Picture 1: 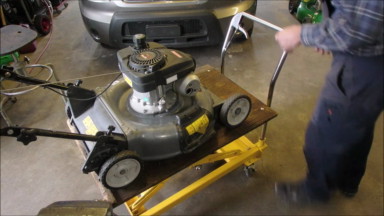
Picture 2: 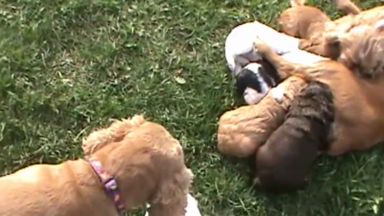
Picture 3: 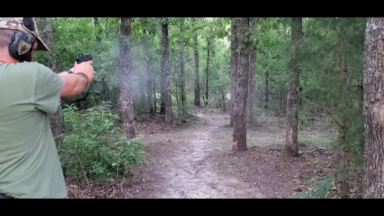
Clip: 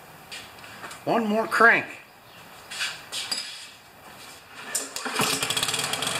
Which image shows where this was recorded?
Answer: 1